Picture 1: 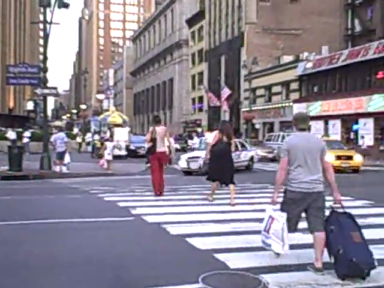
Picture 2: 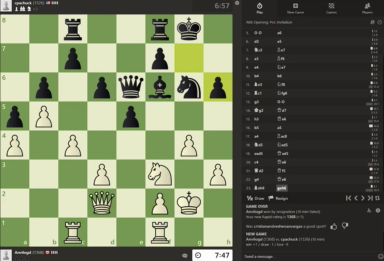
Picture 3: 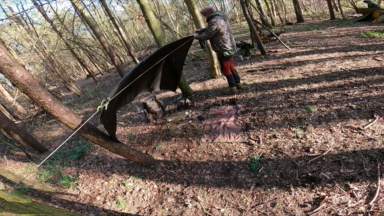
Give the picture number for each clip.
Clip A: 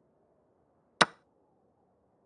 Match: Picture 2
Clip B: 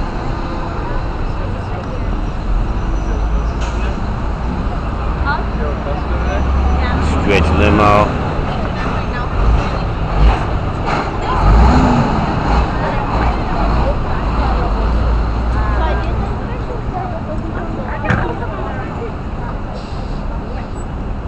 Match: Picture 1